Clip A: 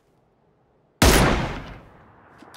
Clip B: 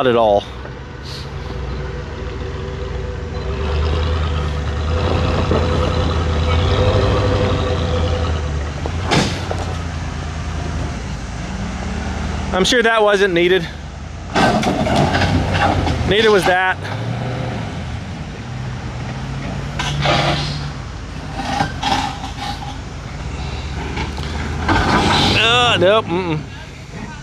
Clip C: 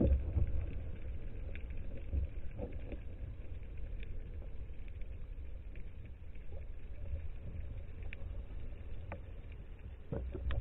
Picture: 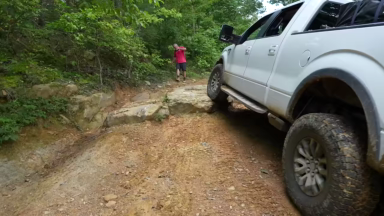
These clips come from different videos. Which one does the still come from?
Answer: B